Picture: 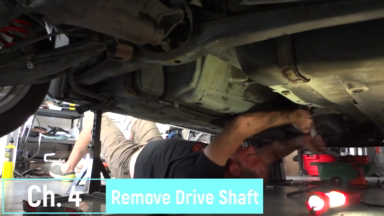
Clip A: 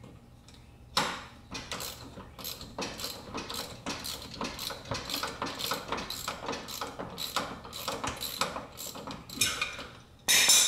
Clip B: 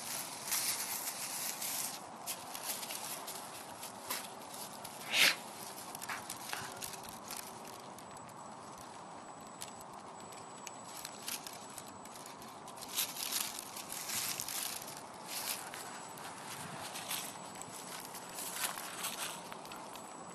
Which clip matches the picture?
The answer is A